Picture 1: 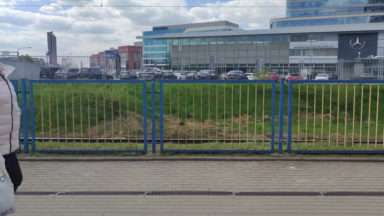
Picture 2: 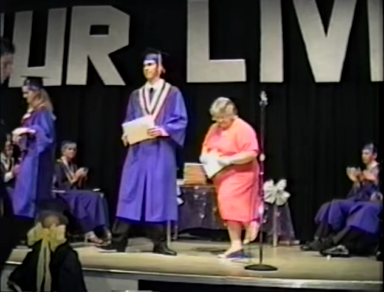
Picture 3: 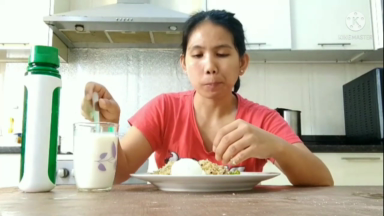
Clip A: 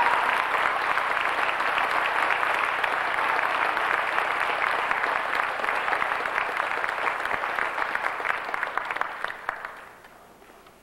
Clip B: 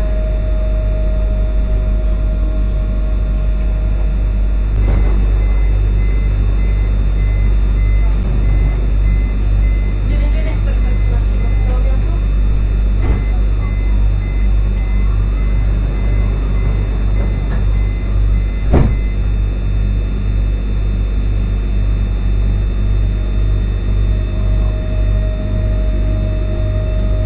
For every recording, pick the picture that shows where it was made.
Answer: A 2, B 1